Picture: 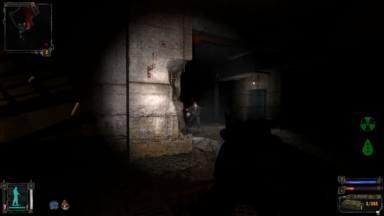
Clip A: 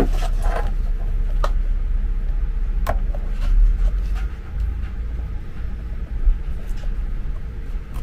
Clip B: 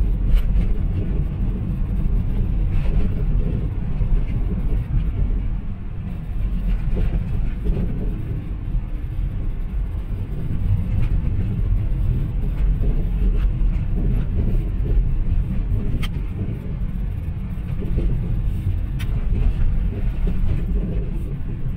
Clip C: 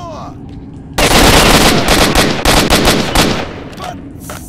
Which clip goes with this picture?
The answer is C